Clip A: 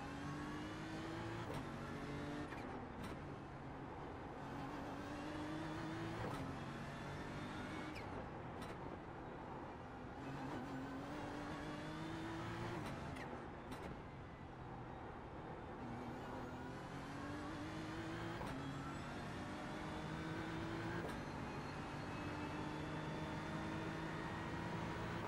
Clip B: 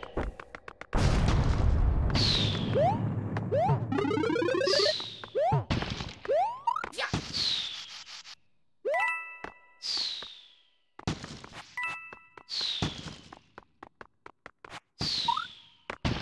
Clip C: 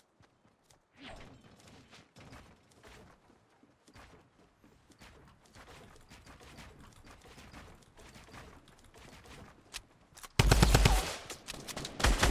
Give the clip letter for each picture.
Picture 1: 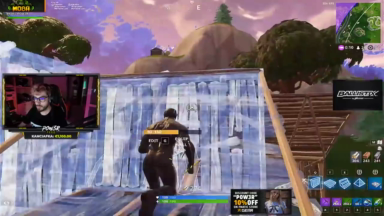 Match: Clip C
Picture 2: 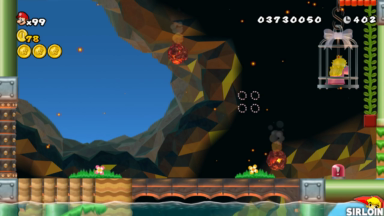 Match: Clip B